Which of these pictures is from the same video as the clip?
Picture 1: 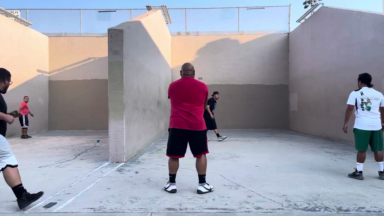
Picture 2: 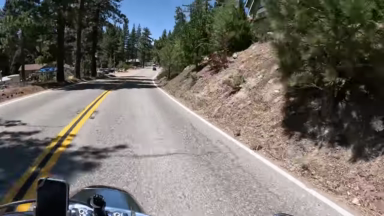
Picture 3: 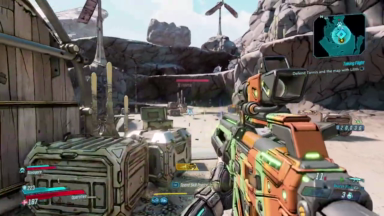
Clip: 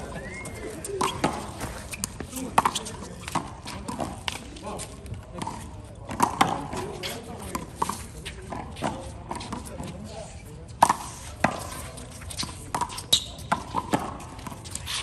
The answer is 1